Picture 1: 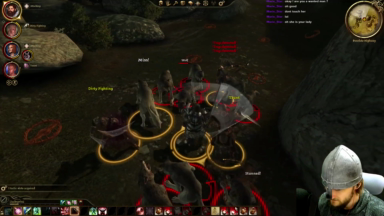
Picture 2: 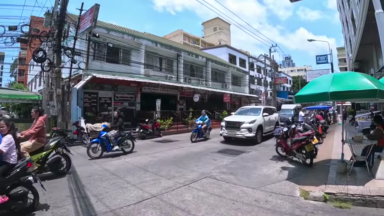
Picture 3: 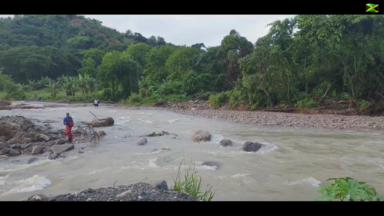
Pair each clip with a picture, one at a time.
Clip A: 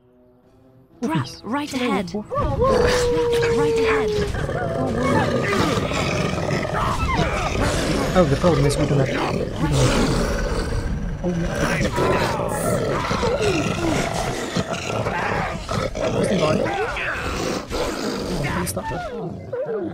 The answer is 1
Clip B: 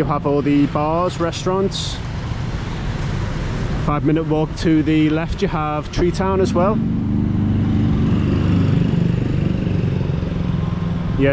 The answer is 2